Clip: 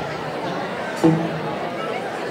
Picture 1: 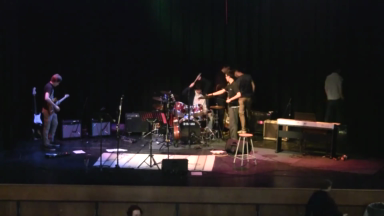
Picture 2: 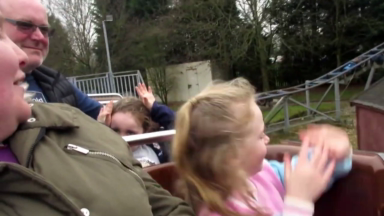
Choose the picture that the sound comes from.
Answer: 1